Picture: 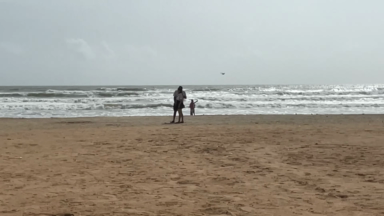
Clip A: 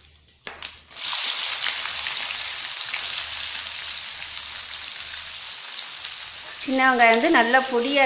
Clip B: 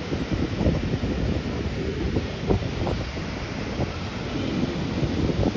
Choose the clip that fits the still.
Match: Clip B